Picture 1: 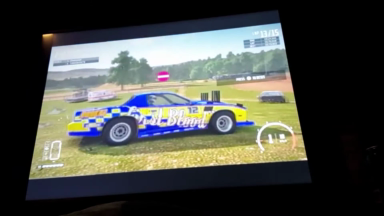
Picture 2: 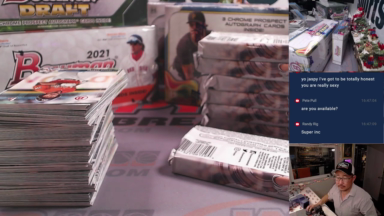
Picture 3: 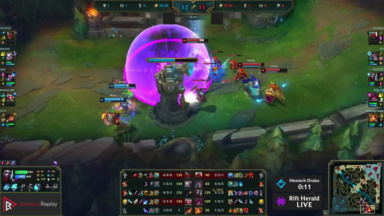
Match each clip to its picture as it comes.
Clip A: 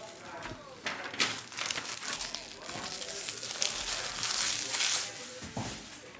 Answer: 2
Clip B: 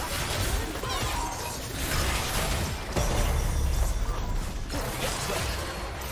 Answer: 3